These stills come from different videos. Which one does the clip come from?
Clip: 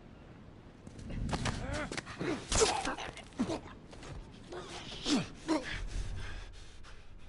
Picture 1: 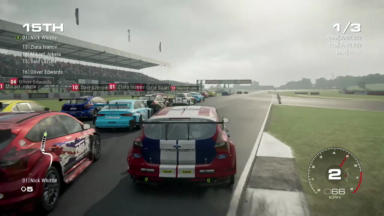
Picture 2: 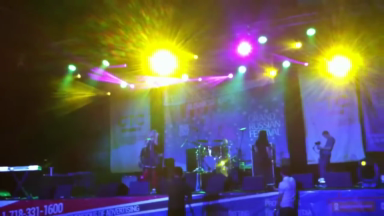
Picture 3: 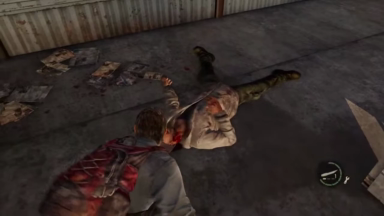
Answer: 3